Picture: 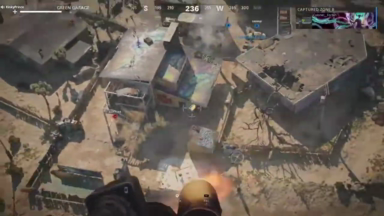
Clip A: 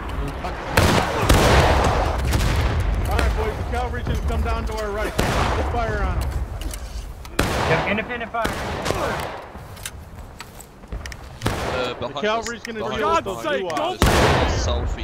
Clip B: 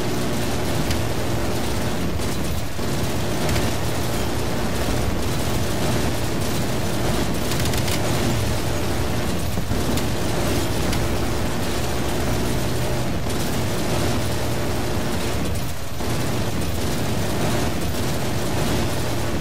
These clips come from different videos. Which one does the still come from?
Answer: B